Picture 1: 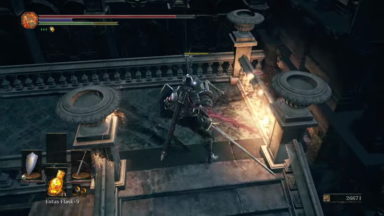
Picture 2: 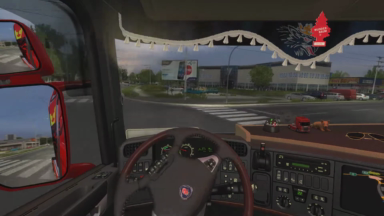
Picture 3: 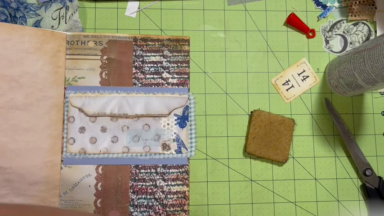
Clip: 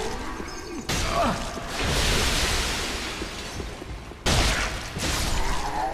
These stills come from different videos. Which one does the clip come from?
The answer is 1